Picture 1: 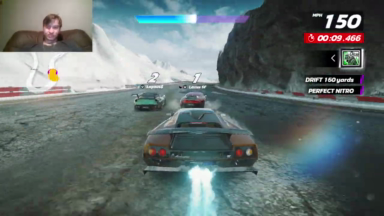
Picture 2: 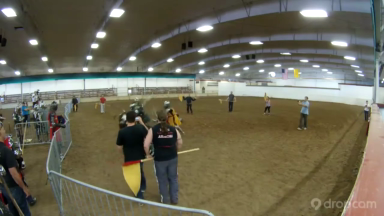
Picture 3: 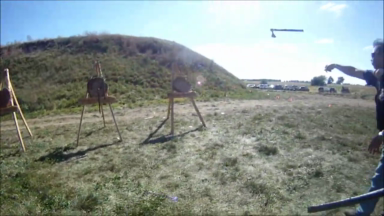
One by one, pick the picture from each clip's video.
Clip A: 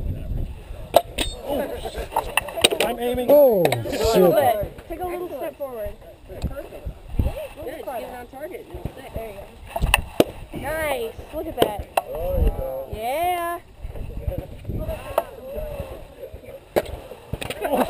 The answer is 3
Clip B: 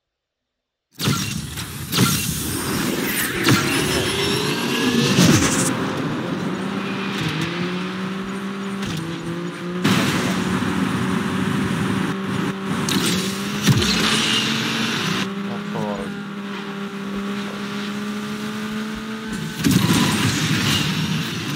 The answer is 1